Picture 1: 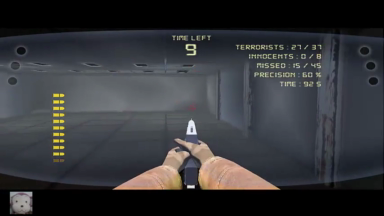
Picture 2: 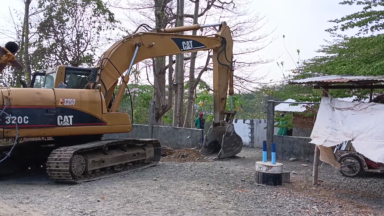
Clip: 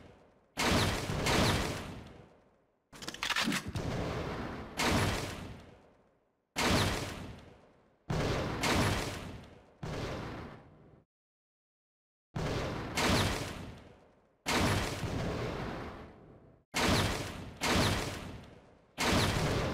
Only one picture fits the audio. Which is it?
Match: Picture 1